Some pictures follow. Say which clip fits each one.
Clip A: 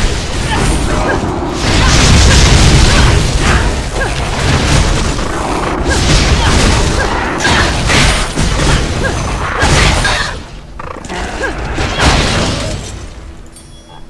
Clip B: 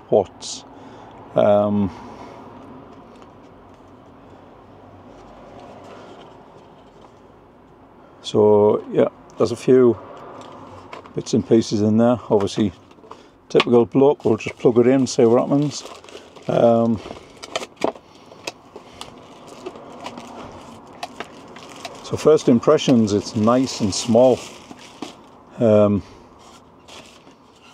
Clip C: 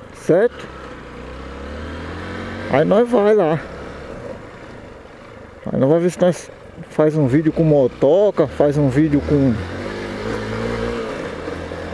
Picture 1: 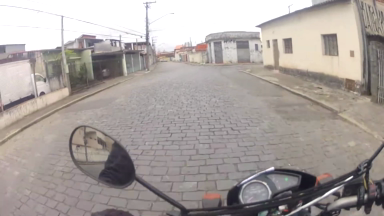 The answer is C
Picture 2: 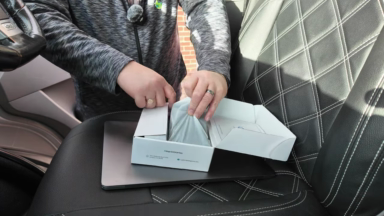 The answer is B